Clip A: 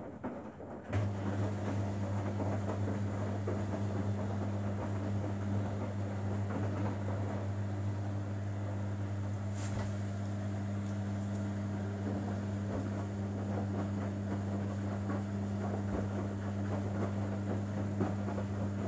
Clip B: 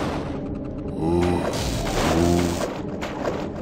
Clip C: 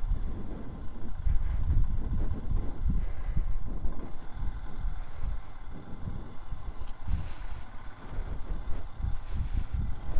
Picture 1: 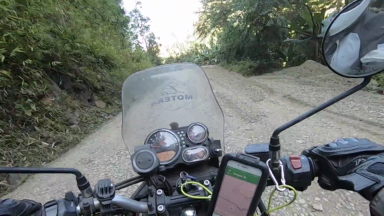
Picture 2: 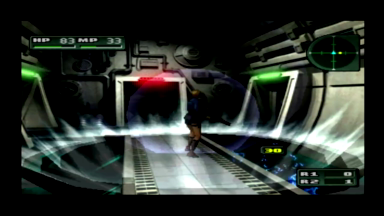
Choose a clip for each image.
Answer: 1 C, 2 B